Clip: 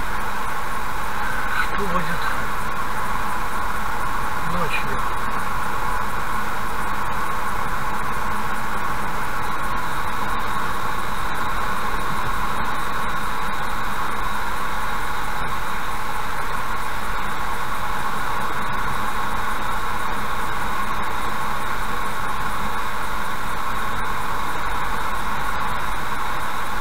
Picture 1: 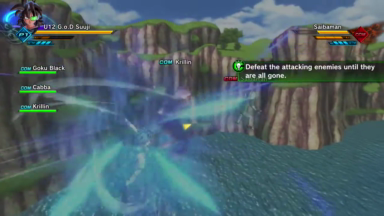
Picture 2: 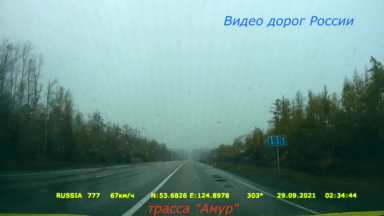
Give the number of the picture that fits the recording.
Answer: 2